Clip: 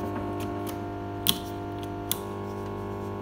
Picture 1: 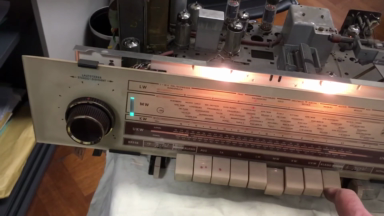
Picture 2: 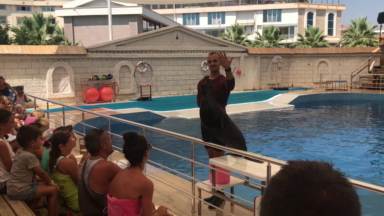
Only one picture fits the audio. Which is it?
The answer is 1